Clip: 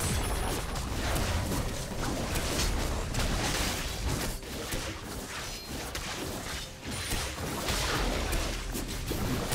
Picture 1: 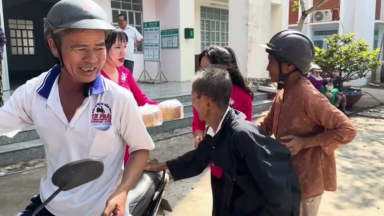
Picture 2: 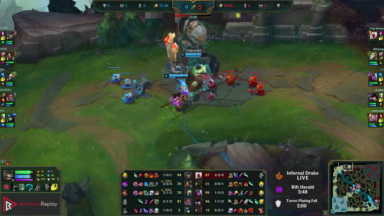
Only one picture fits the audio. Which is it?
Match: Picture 2